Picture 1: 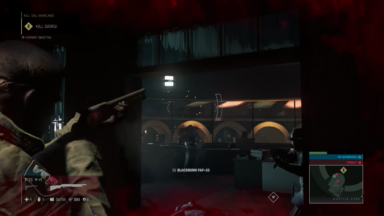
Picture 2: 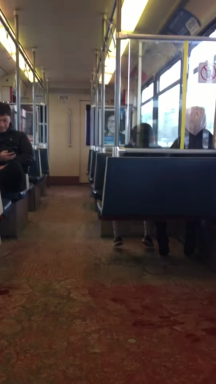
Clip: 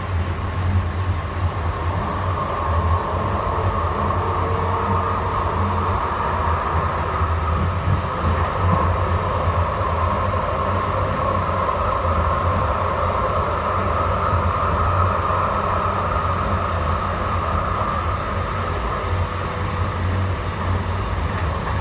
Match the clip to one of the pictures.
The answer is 2